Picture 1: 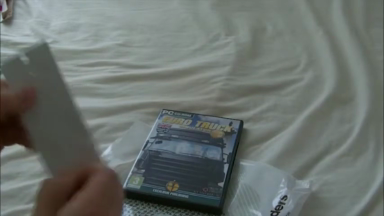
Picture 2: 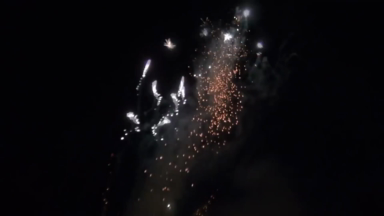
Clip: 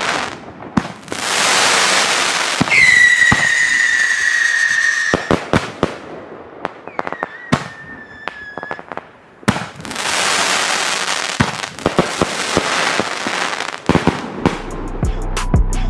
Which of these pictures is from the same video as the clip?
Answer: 2